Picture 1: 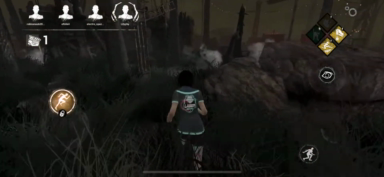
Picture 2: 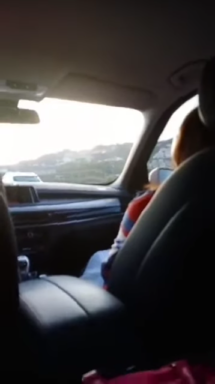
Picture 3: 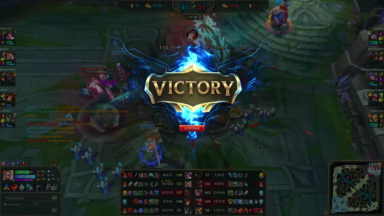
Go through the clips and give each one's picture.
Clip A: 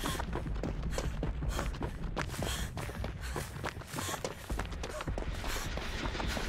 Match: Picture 1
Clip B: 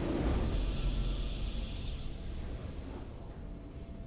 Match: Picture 3